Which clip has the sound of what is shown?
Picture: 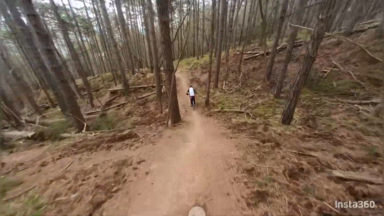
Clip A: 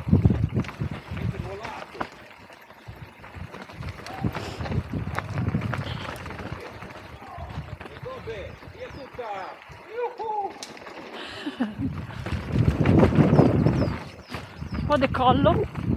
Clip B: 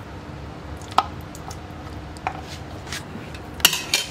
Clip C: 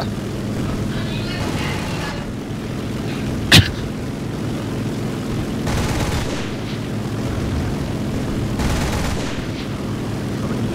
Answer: A